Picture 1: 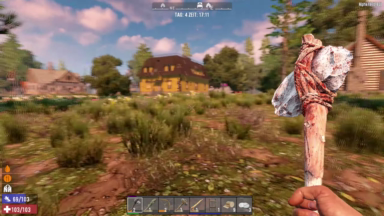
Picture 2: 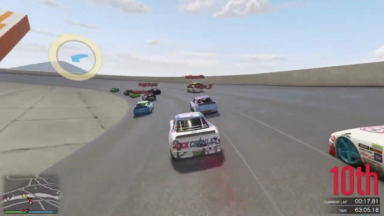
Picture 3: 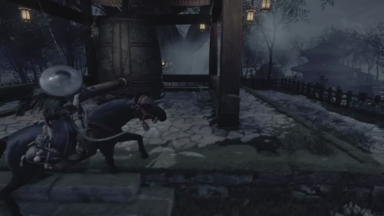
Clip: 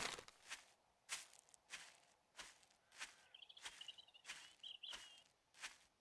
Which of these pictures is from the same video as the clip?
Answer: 1